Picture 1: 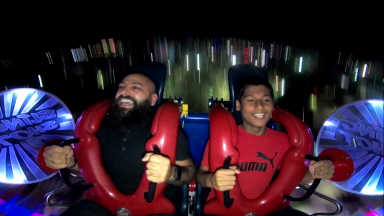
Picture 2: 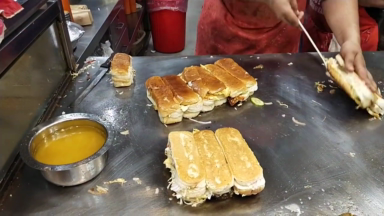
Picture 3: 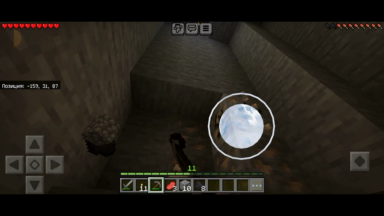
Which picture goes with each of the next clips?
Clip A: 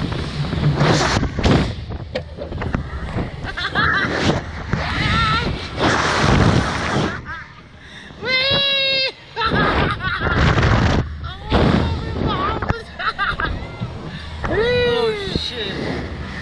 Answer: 1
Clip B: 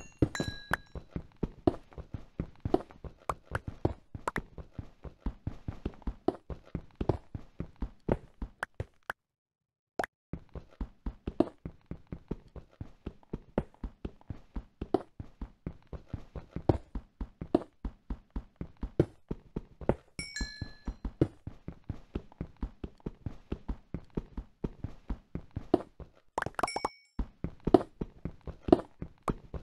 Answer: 3